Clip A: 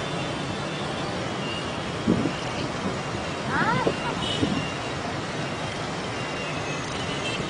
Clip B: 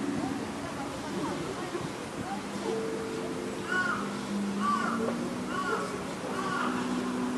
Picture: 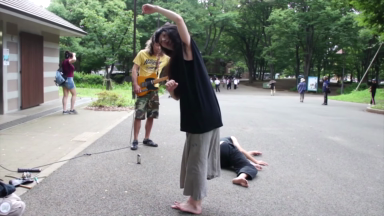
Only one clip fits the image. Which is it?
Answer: B